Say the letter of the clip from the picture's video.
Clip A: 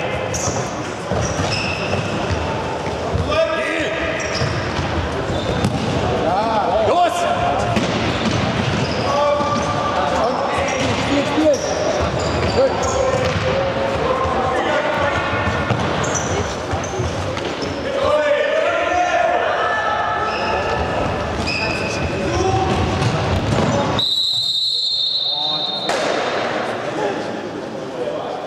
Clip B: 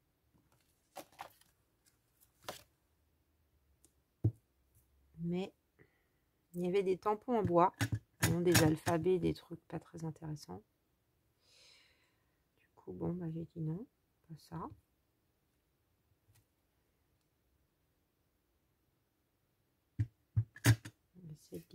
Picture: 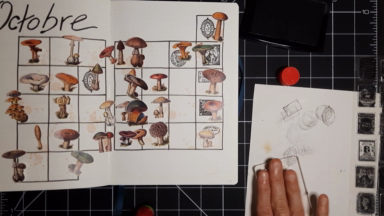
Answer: B